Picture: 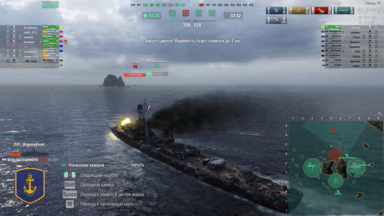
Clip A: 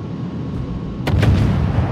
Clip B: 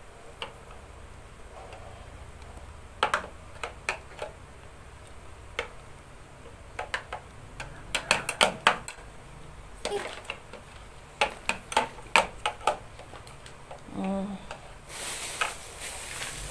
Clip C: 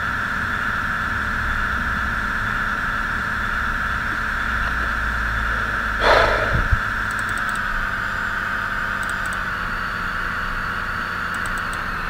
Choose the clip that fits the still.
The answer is A